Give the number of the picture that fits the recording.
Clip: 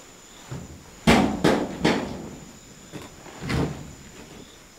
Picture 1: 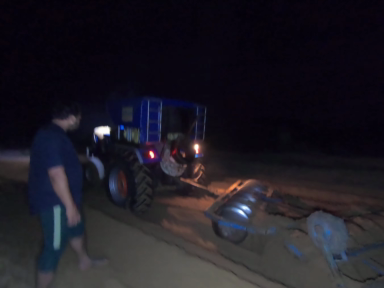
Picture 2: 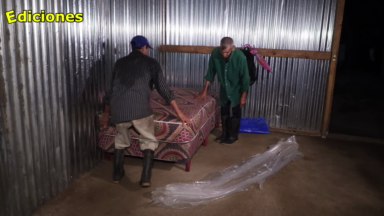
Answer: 2